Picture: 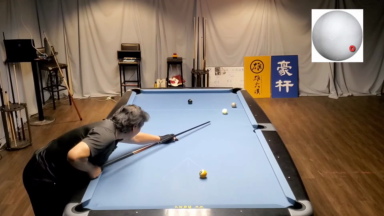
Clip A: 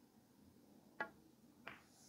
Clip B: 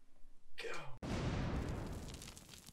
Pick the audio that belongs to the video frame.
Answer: A